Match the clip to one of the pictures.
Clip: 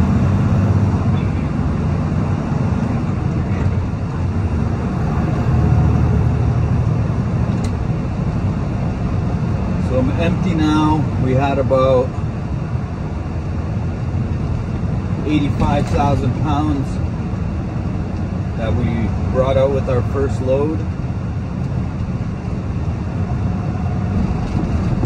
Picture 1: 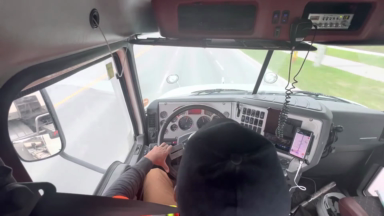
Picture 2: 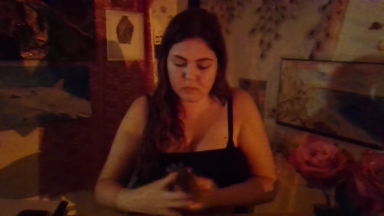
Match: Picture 1